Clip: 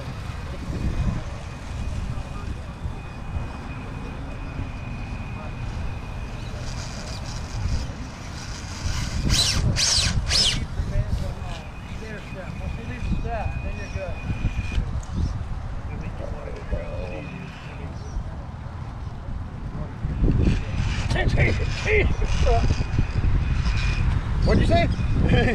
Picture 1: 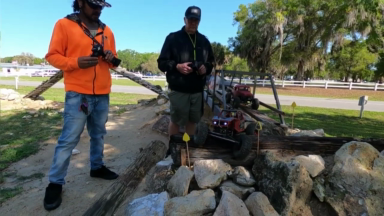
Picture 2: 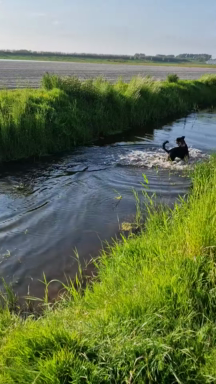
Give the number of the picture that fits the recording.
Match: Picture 1